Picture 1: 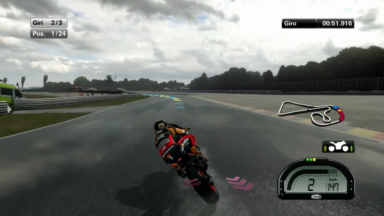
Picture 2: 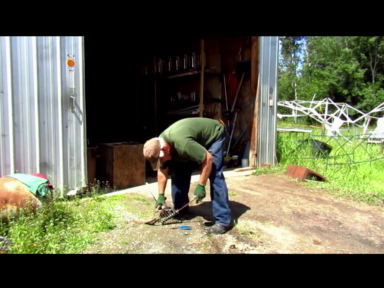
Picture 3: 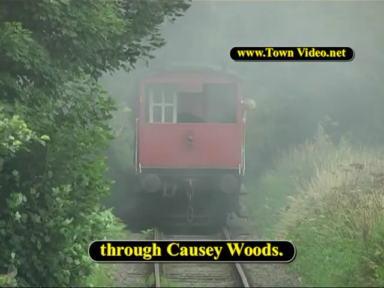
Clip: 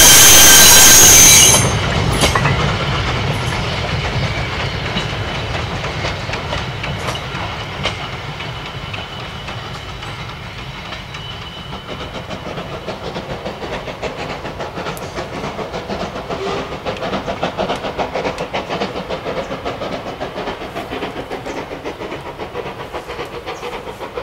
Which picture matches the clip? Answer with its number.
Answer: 3